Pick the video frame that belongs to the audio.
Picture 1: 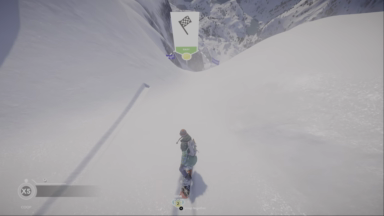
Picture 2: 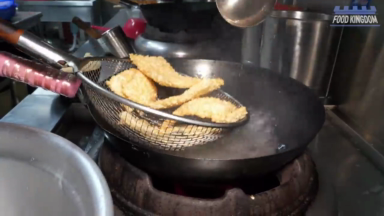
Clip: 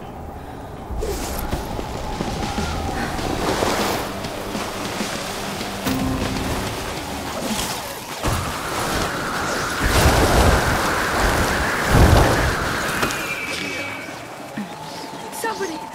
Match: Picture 1